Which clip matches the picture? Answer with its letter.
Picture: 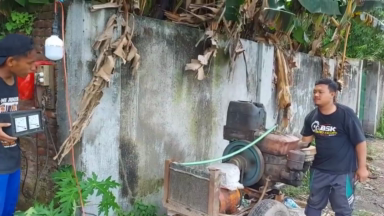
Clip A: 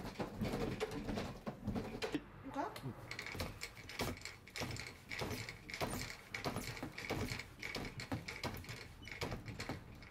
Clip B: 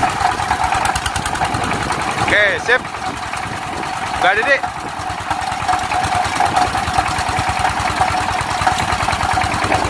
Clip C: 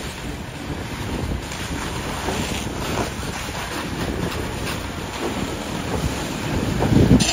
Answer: B